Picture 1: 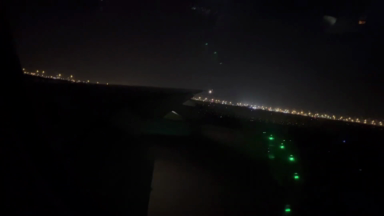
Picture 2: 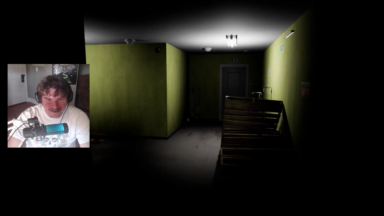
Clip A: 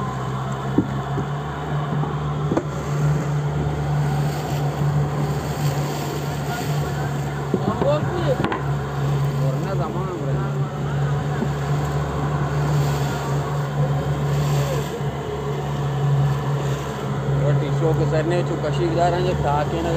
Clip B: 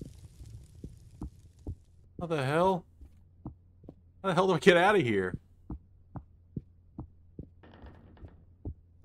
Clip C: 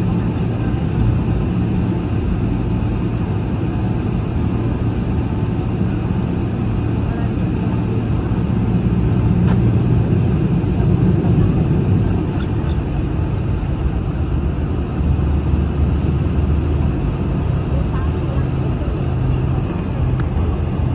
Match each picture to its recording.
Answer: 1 C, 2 B